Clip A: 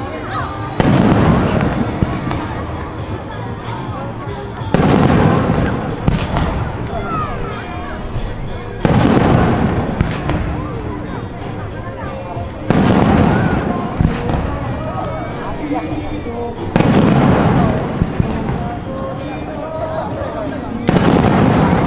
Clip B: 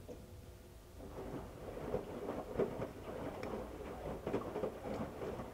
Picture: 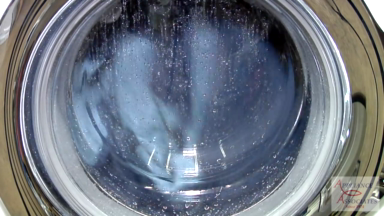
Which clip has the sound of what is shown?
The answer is B